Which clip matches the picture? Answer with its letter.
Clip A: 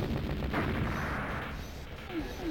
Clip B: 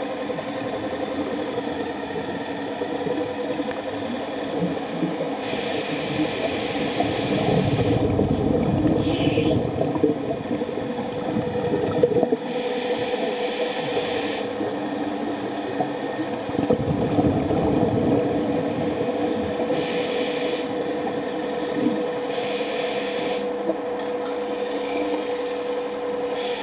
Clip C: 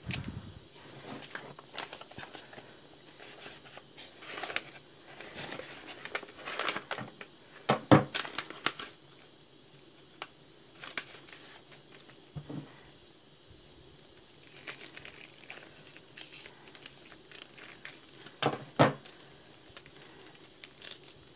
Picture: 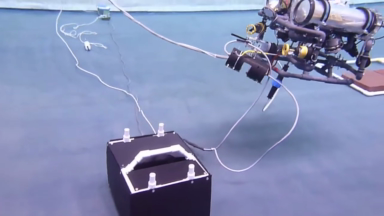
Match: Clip B